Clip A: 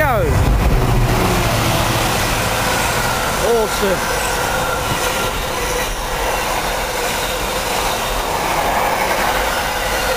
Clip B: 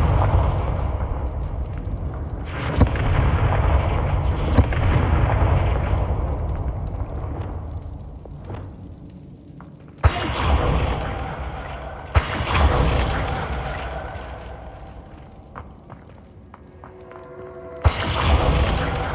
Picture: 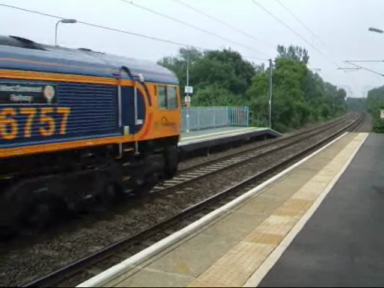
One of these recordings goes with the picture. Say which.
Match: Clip A